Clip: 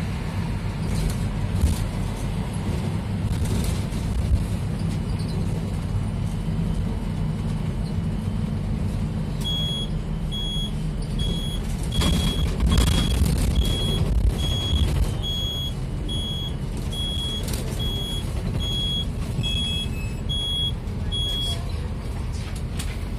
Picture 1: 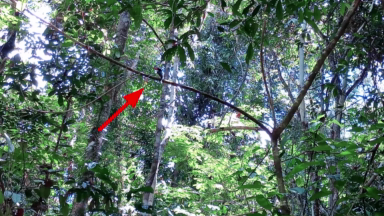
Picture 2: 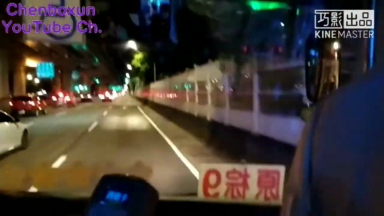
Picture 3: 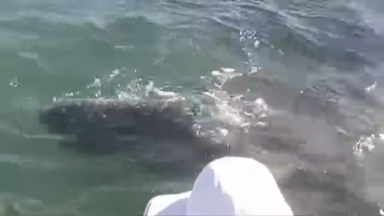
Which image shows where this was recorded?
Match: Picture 2